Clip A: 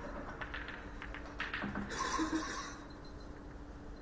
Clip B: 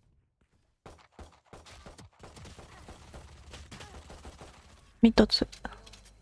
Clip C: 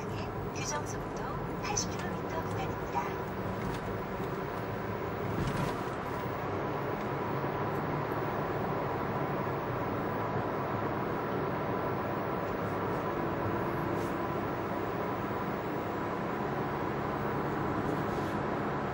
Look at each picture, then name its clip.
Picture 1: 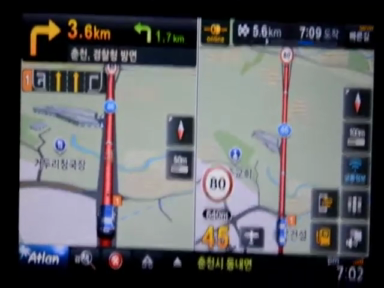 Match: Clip C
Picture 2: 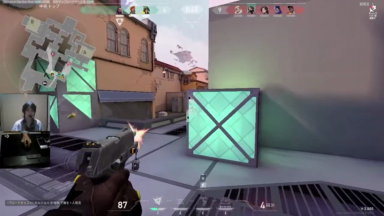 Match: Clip B